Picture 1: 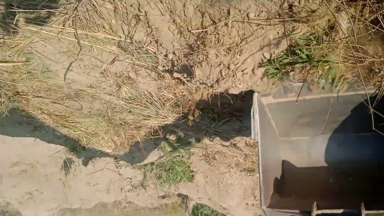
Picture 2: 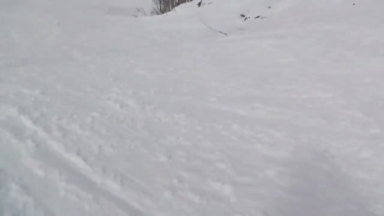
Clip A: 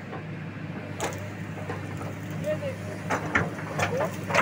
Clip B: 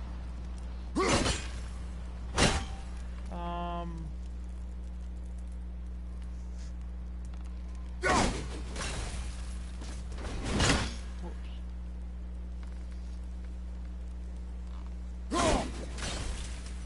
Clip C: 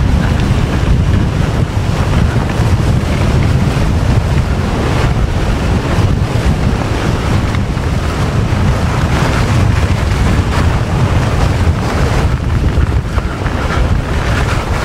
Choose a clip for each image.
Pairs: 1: A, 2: C